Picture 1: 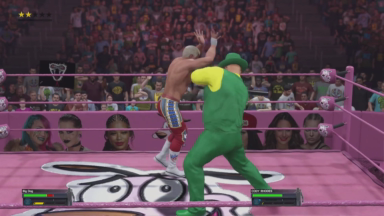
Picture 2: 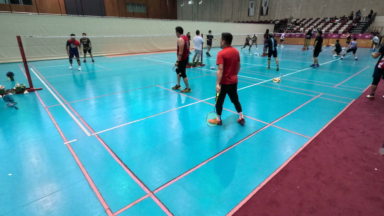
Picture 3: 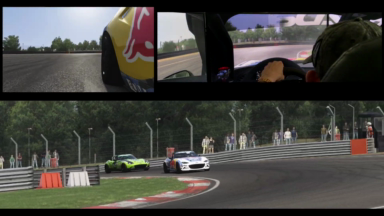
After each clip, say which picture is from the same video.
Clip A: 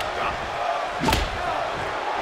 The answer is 1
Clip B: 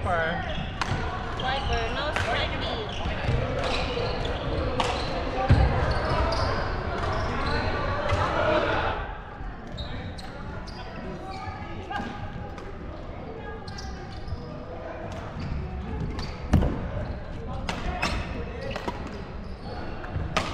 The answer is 2